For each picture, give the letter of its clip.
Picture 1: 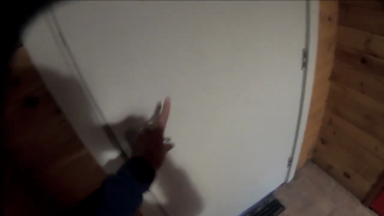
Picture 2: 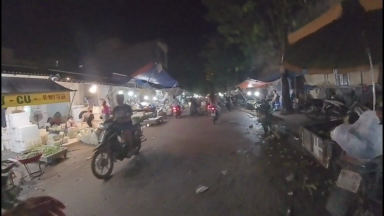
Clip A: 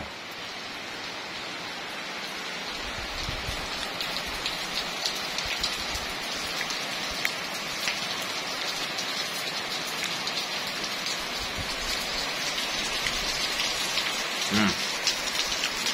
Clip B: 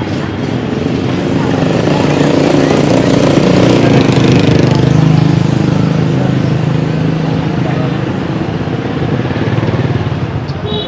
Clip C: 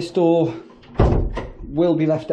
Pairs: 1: C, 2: B